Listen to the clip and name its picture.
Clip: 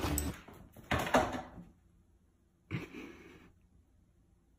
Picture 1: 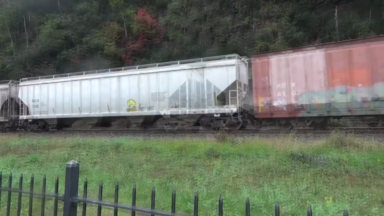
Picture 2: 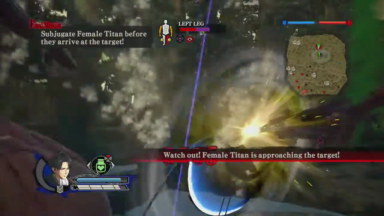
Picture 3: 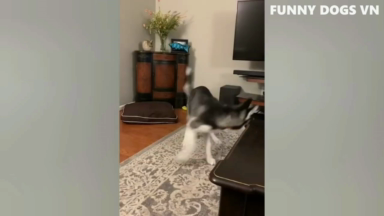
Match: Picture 3